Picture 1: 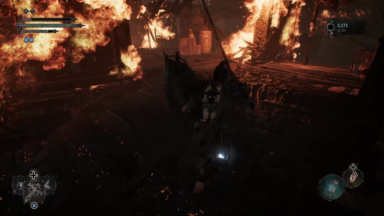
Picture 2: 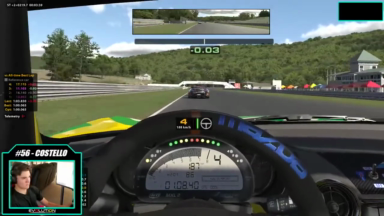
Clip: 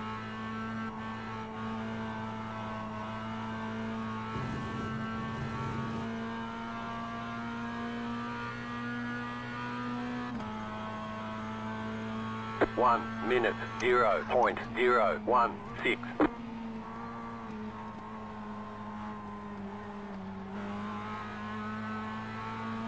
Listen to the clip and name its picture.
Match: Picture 2